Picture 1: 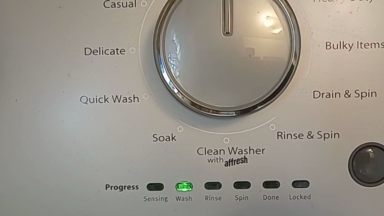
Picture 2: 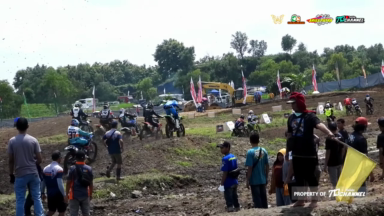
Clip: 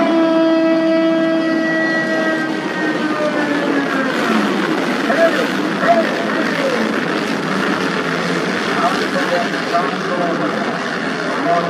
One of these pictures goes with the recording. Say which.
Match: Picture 2